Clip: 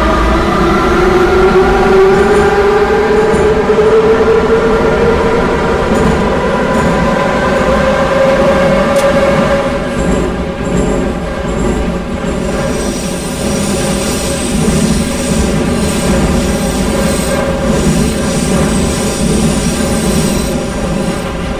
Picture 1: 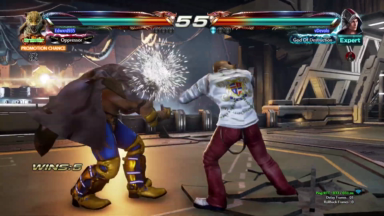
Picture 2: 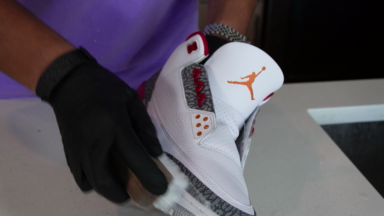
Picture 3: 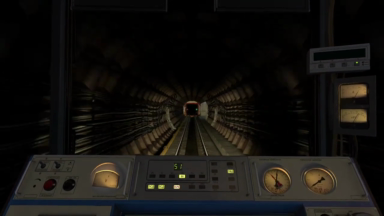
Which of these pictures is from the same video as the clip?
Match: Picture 3